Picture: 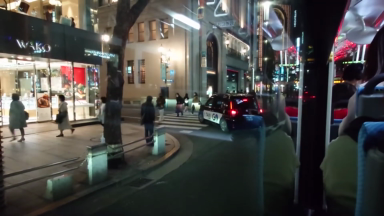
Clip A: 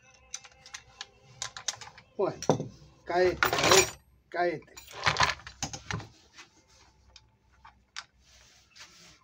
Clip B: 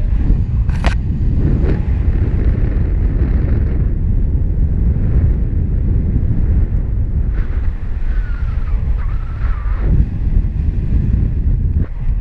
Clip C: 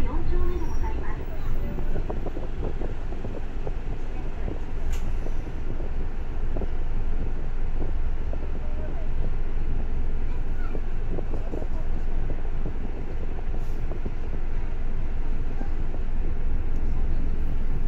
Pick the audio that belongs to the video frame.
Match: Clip C